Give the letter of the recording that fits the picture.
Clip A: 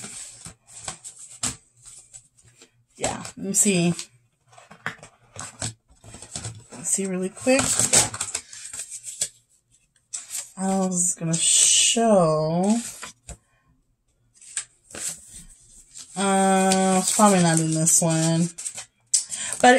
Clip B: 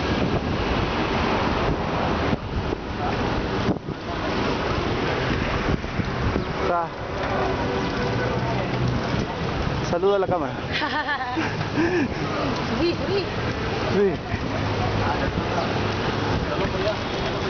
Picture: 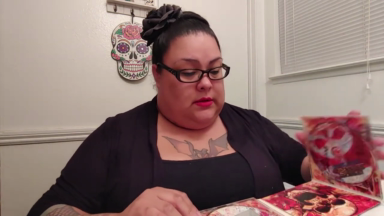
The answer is A